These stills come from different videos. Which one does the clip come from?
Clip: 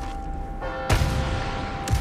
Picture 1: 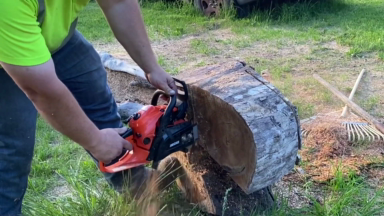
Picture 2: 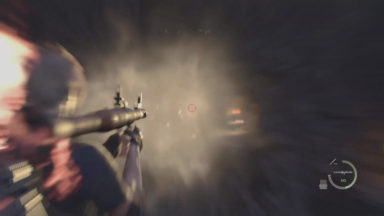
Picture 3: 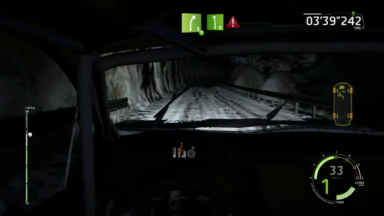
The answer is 2